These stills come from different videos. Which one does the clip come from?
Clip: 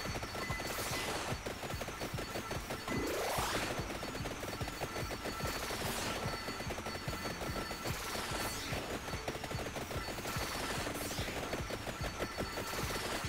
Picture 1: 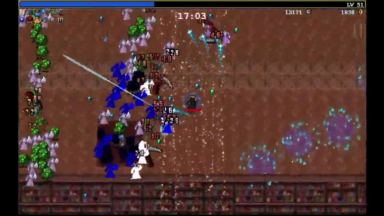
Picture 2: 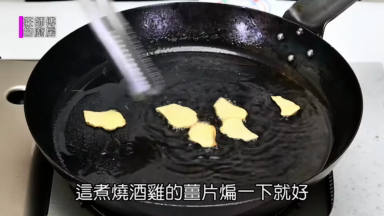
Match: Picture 1